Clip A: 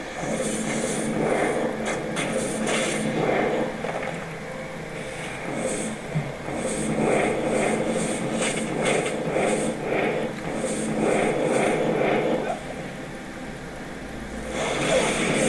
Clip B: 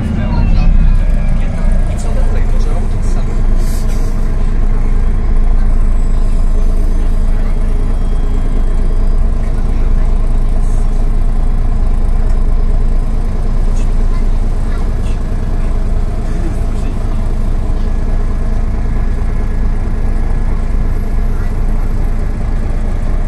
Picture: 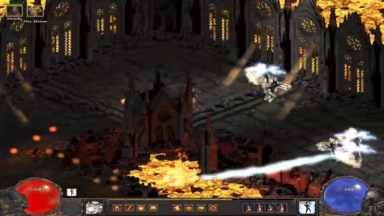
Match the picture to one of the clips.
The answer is A